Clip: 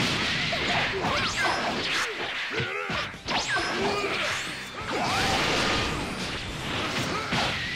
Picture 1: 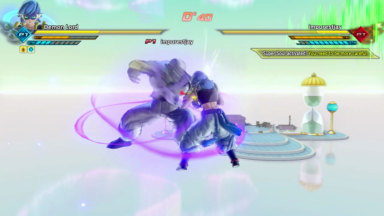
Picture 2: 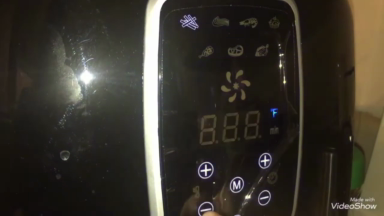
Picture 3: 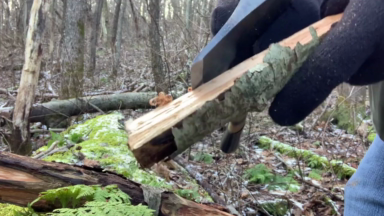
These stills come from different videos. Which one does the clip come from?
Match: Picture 1